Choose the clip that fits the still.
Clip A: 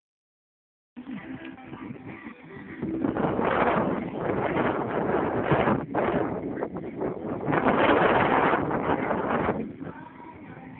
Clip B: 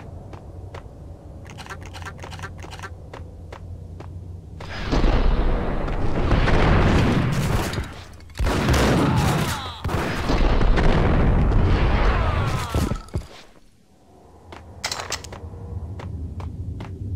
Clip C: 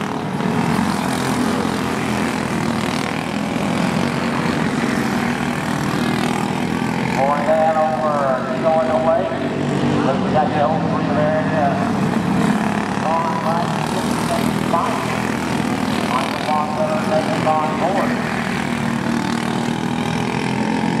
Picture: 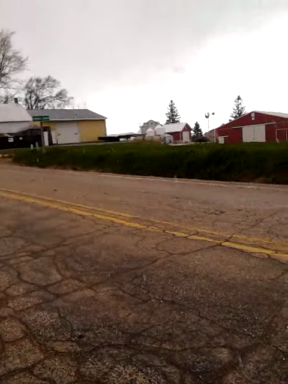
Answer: A